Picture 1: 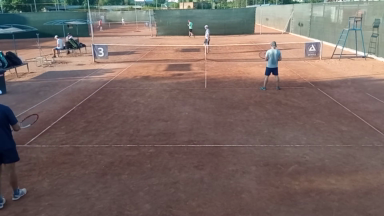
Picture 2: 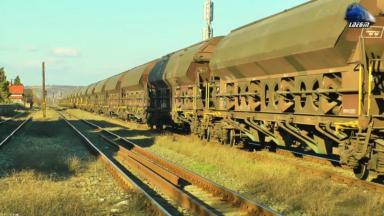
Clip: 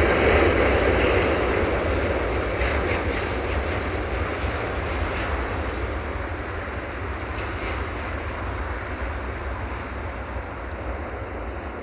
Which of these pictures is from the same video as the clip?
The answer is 2